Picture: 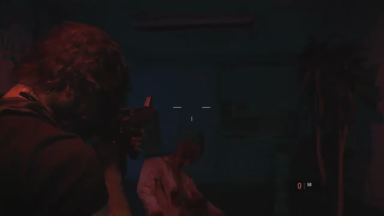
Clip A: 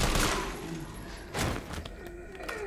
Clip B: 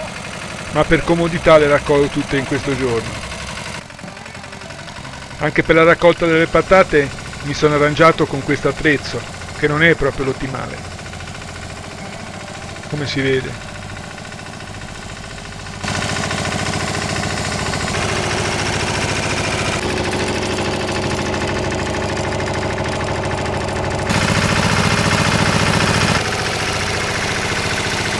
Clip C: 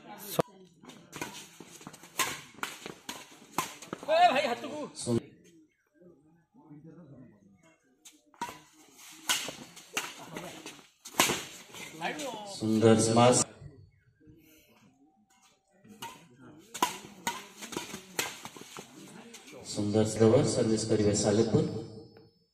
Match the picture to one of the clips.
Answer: A